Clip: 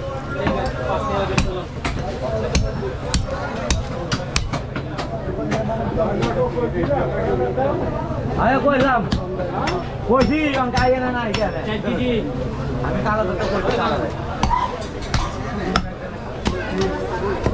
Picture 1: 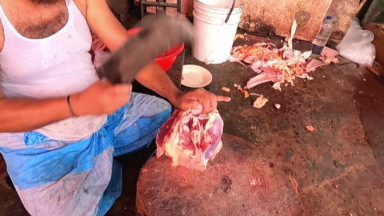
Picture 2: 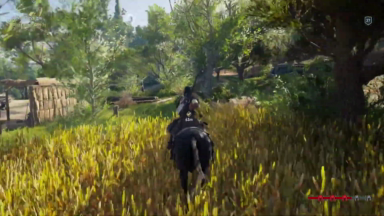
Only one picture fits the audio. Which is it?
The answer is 1